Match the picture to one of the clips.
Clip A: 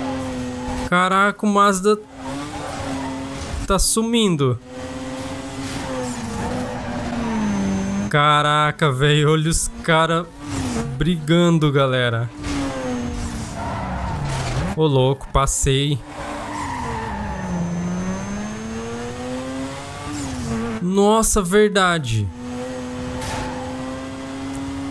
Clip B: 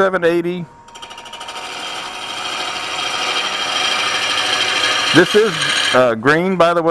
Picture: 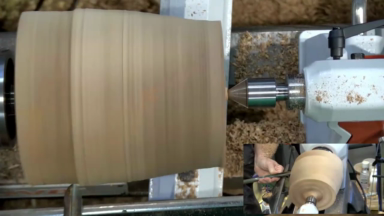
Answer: B